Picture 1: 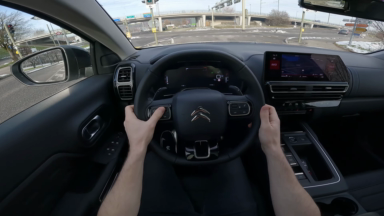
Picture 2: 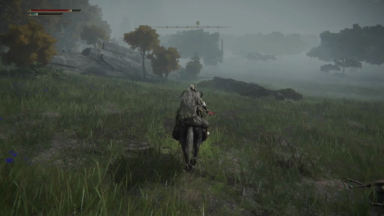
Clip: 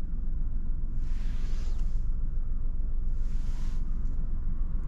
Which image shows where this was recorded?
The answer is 1